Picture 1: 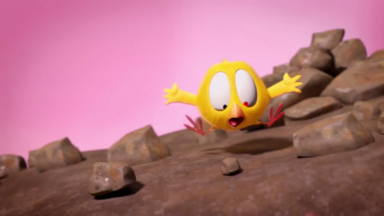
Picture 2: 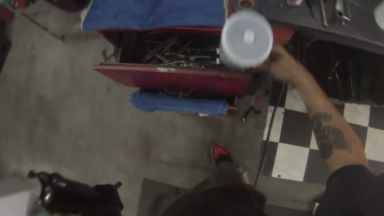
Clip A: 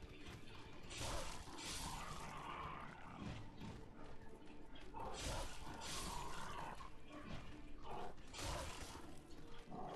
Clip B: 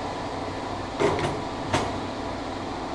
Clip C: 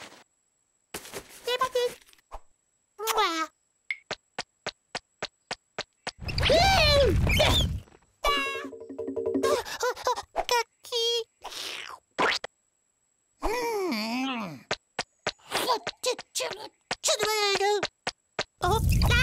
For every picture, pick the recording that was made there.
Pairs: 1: C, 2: B